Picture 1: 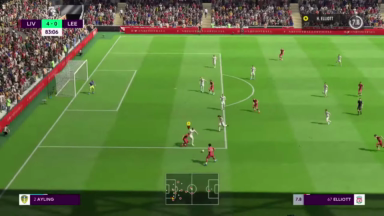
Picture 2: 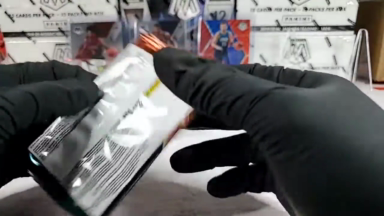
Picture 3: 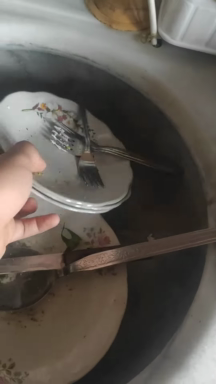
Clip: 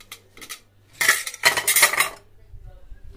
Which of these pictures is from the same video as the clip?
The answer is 3